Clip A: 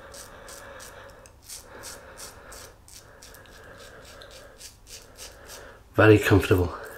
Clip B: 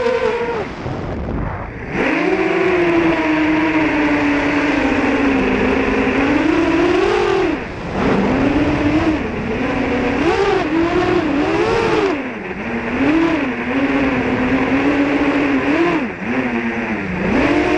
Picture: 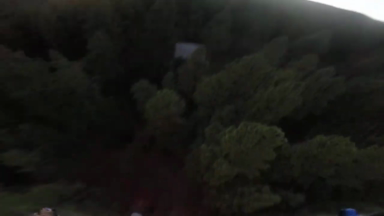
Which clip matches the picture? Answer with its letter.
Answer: B